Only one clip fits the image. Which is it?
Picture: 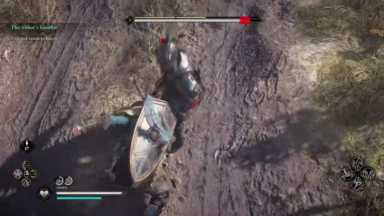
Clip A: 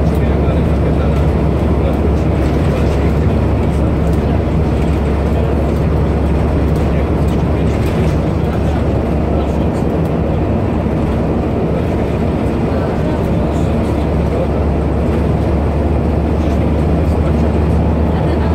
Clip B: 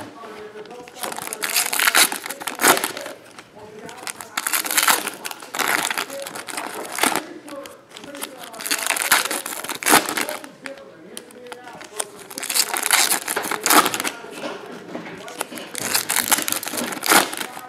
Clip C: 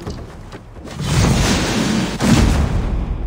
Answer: C